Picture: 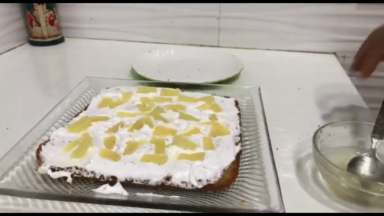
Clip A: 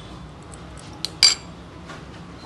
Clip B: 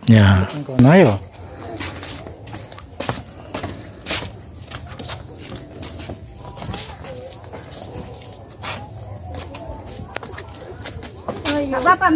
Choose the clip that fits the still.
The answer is A